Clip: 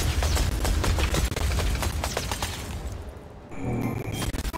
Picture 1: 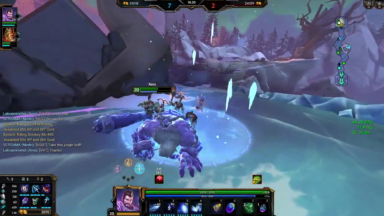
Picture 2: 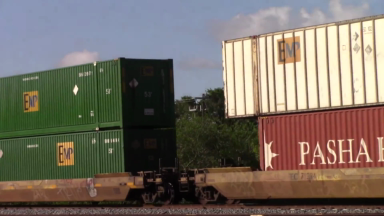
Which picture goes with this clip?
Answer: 1